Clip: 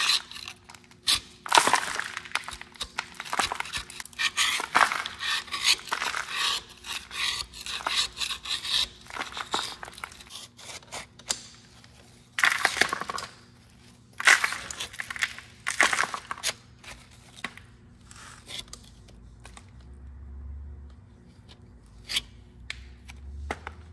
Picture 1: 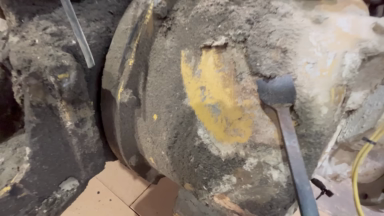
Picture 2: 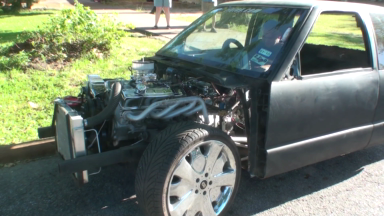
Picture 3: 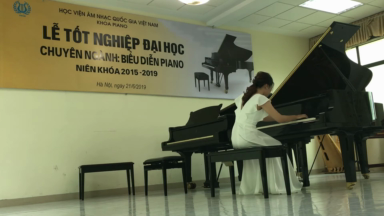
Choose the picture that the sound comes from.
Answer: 1